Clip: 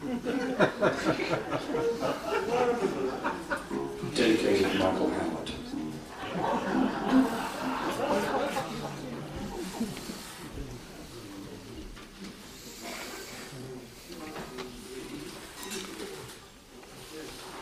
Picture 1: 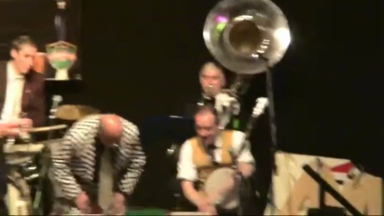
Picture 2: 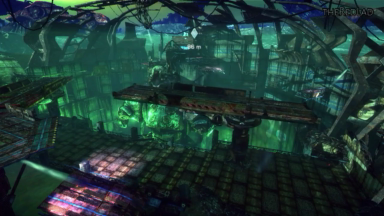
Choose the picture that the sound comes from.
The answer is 1